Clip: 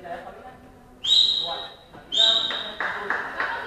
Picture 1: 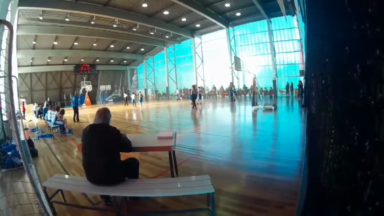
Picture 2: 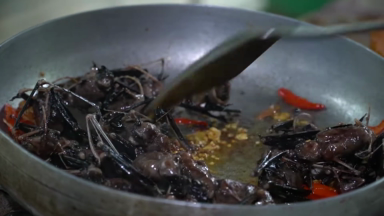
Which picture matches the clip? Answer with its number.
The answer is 1